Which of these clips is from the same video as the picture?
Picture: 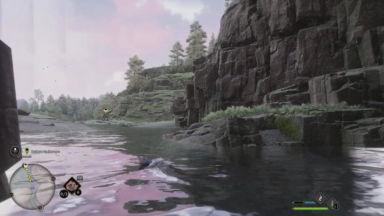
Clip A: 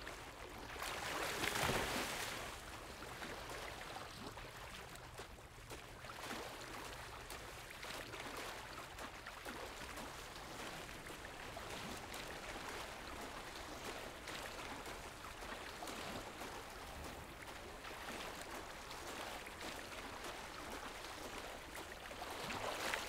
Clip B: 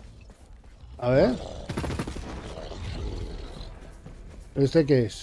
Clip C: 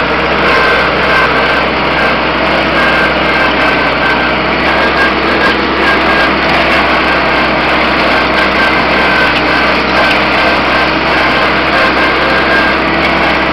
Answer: A